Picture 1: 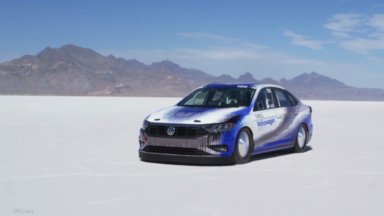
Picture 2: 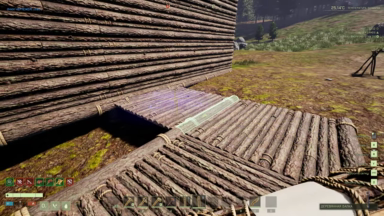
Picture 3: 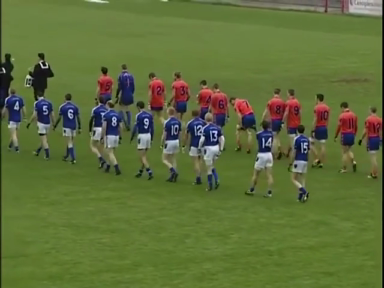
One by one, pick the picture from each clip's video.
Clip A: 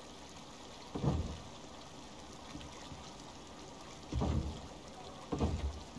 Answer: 2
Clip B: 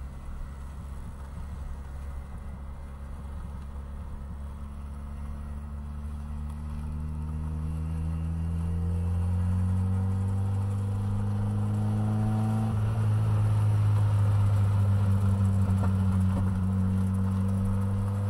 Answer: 1